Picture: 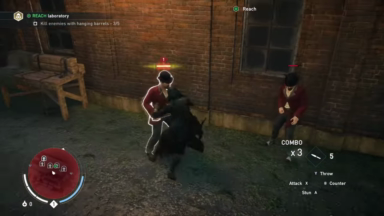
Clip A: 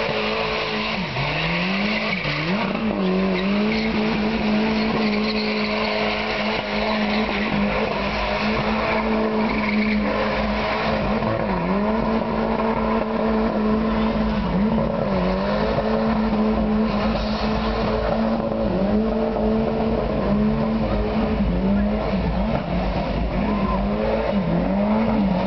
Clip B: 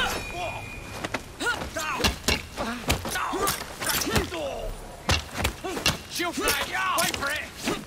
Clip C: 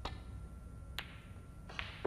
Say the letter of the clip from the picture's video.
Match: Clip B